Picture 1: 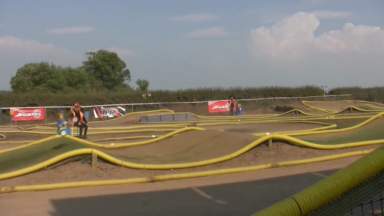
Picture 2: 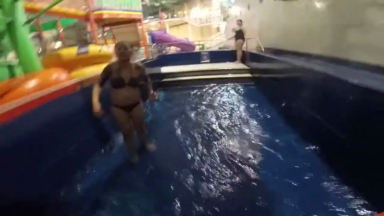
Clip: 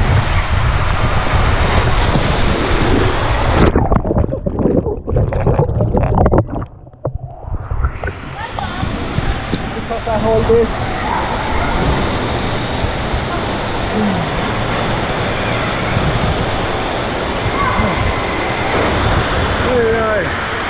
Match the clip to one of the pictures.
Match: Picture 2